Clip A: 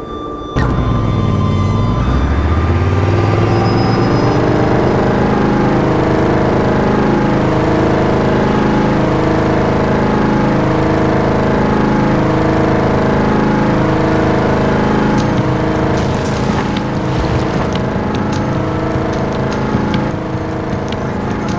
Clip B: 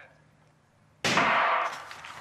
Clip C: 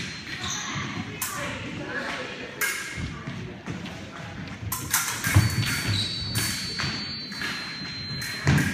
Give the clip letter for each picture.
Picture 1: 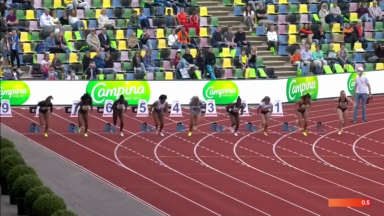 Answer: B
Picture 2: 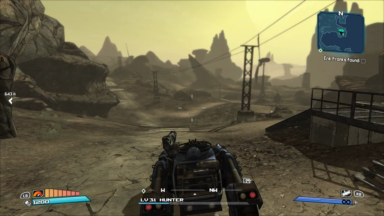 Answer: A